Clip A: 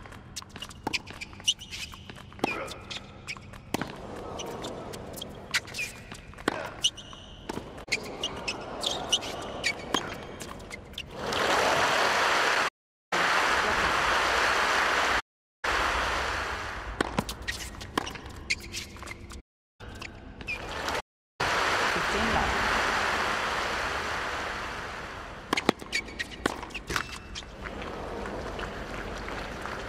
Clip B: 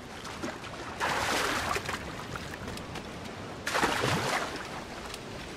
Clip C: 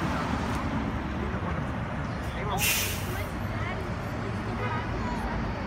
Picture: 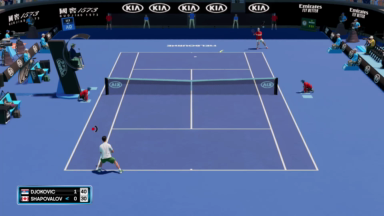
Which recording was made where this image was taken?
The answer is A